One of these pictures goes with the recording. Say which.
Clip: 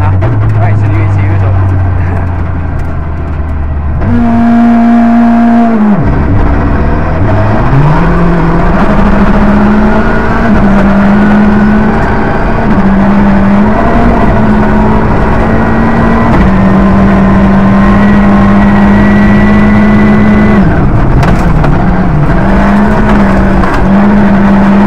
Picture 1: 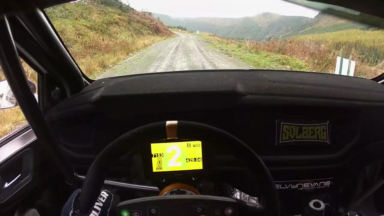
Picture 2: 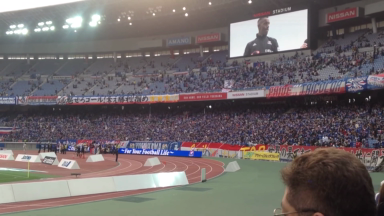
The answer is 1